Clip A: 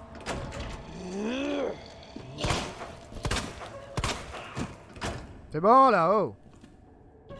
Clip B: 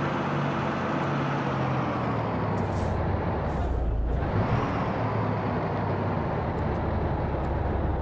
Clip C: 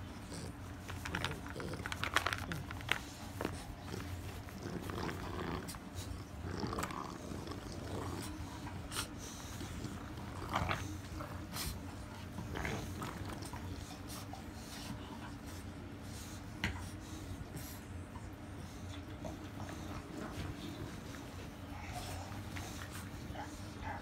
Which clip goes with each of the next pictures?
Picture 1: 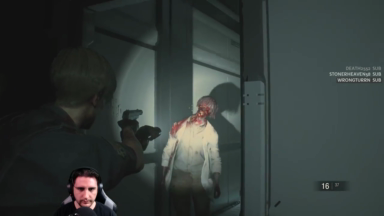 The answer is A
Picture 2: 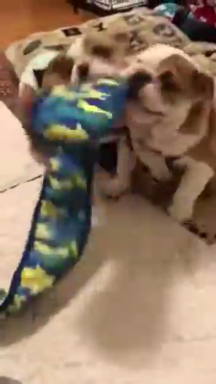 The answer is C